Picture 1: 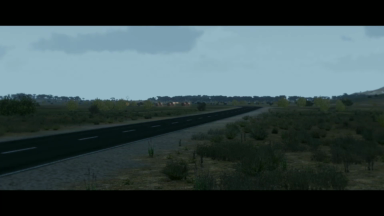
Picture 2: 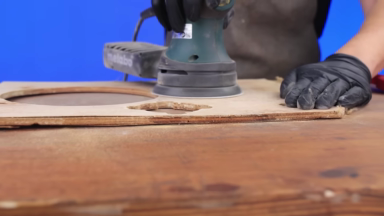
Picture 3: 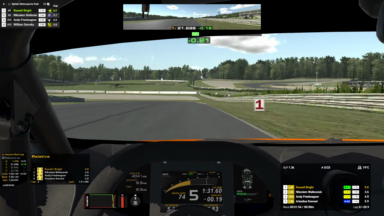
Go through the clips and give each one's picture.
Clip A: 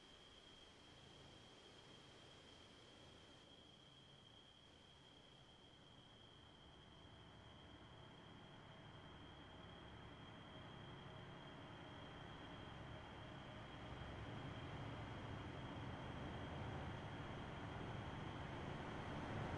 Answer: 1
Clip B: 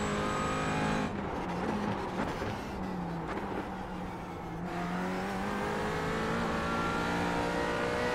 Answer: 3